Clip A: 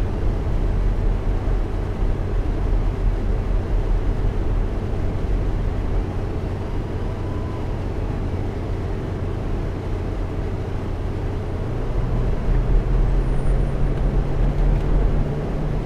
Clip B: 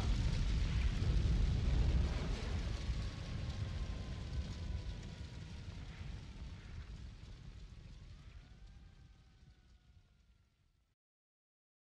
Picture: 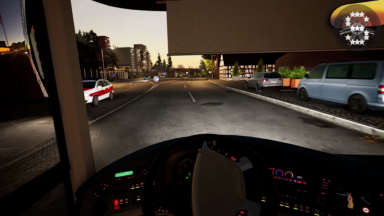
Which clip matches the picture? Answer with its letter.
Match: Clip A